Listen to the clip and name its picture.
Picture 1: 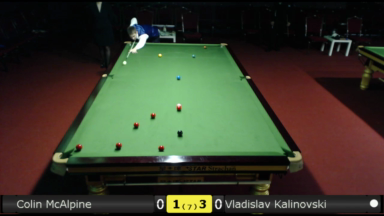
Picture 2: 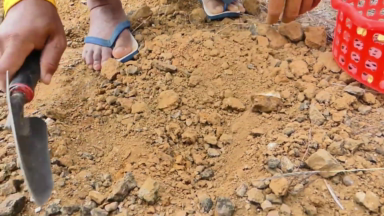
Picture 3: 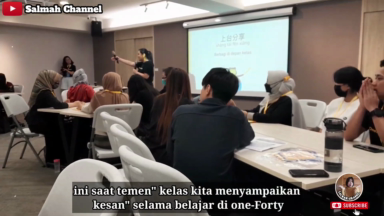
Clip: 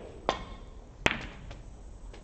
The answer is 1